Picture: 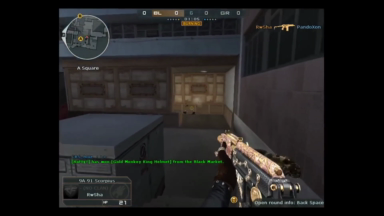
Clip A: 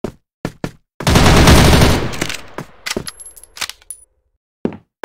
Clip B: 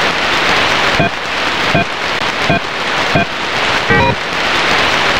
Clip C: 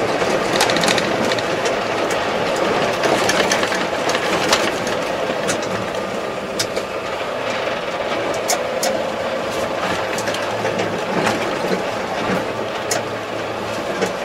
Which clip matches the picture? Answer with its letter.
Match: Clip A